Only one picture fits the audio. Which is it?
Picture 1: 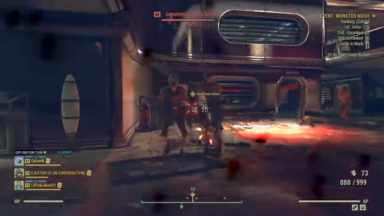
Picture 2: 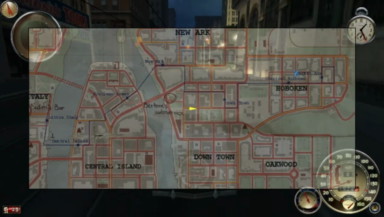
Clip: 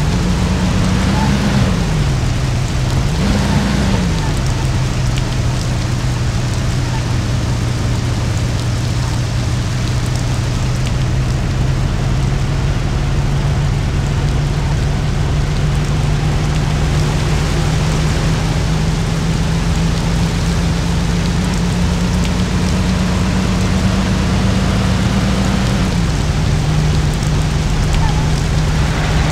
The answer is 2